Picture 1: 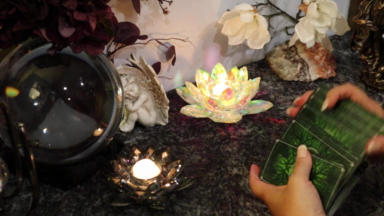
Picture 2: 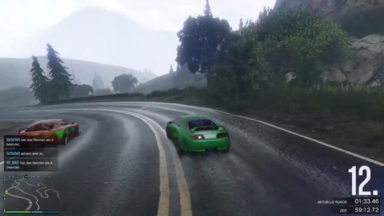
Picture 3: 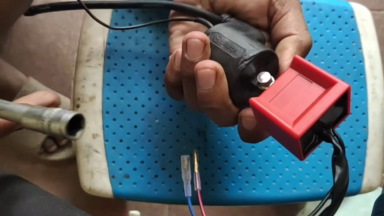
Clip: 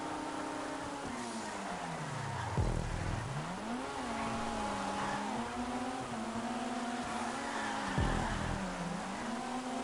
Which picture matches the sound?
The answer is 2